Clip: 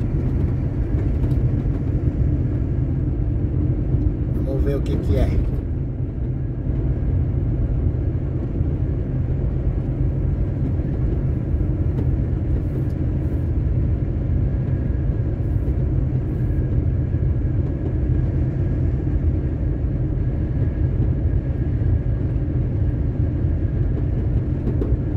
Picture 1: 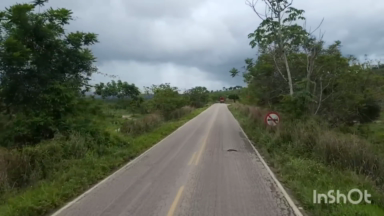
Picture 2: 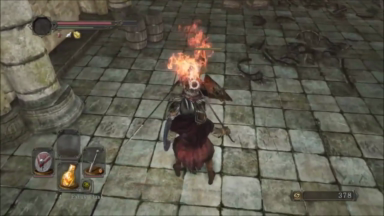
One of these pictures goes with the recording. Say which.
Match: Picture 1